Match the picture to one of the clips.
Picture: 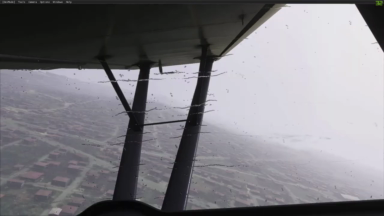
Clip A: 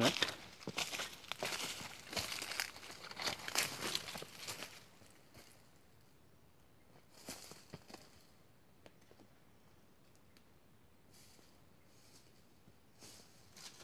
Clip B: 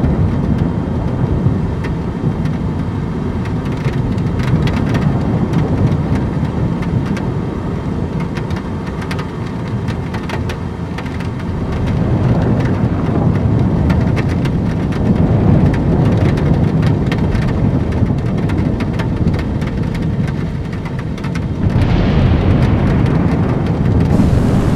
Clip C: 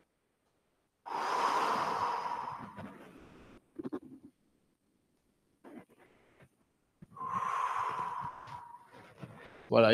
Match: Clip B